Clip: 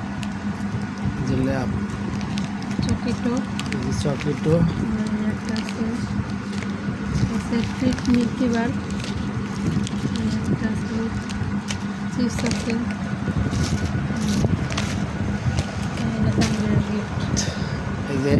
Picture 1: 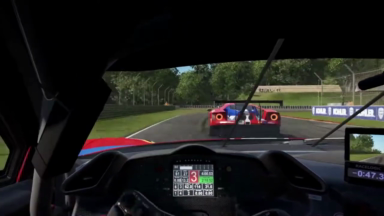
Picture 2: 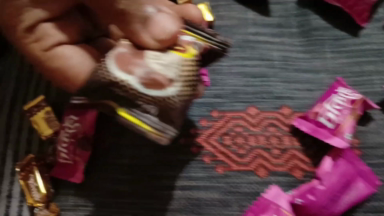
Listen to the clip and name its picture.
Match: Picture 2